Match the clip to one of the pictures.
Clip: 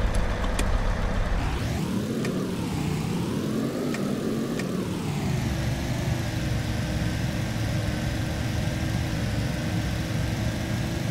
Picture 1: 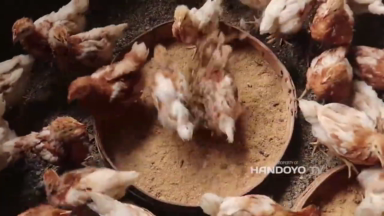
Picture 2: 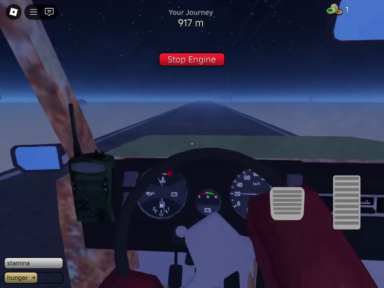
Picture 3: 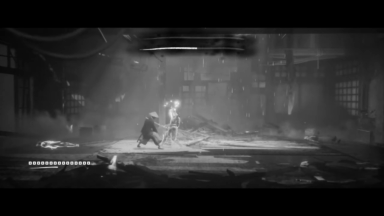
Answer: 2